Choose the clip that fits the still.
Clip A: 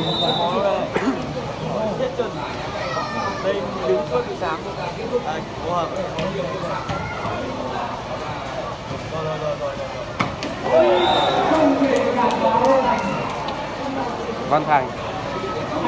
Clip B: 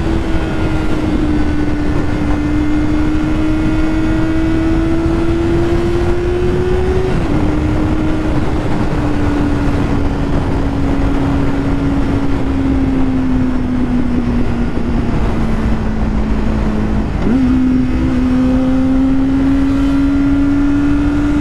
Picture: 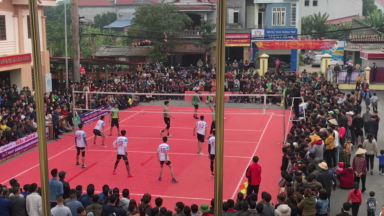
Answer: A